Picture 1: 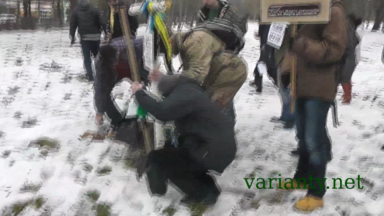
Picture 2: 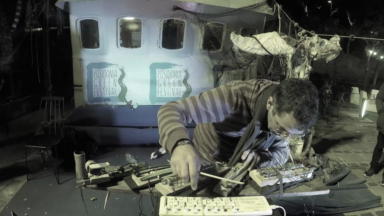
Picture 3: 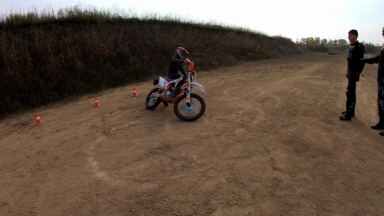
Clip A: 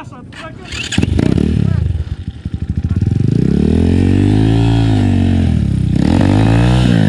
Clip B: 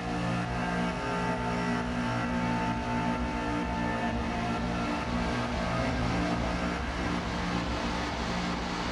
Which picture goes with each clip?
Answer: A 3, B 2